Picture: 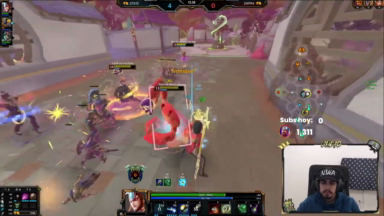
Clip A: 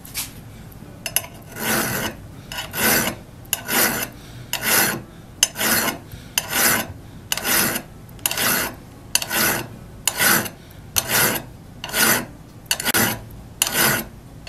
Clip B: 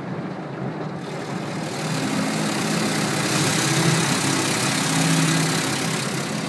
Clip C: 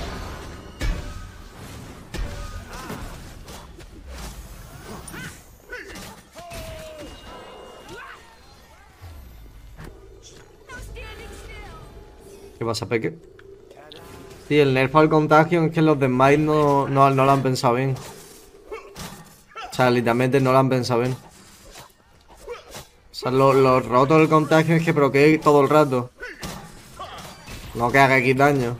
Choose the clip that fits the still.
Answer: C